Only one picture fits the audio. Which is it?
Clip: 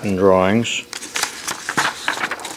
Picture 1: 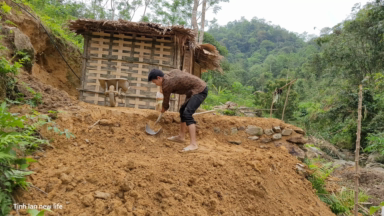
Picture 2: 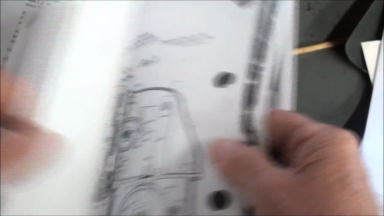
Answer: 2